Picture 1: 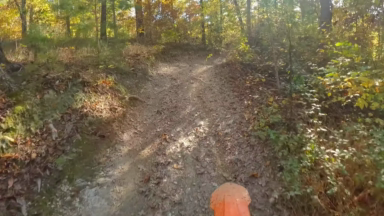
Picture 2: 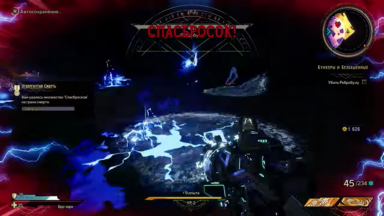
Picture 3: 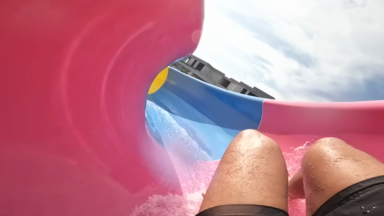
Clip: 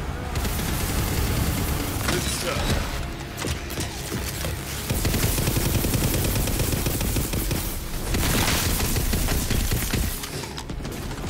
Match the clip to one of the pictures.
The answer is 2